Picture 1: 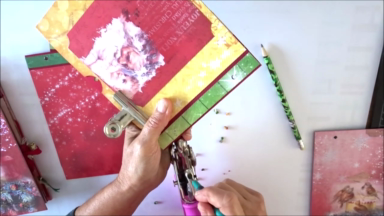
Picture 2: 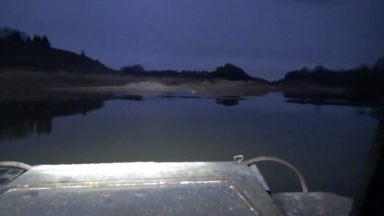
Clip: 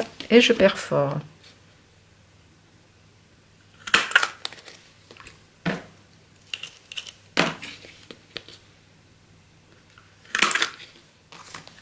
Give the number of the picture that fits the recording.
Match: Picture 1